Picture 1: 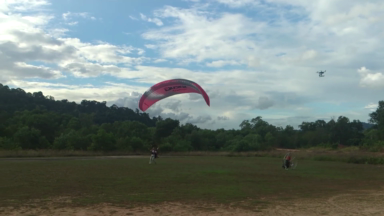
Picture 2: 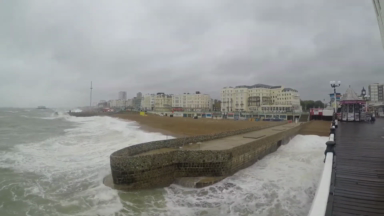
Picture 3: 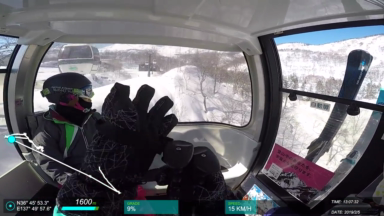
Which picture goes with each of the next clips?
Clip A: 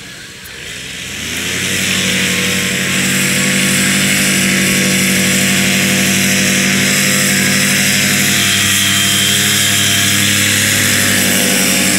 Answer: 1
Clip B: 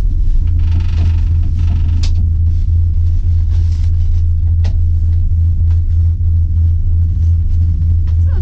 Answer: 3